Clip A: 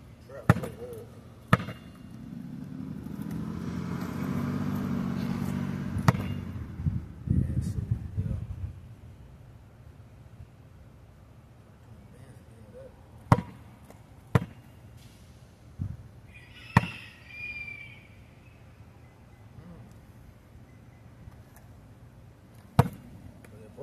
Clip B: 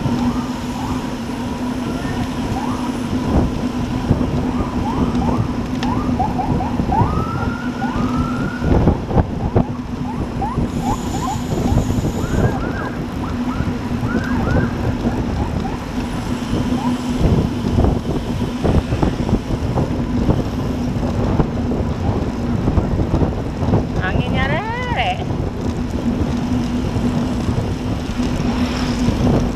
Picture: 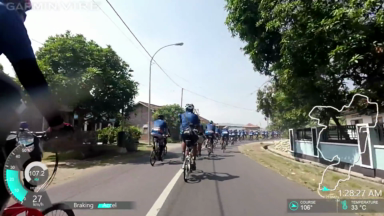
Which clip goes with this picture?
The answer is B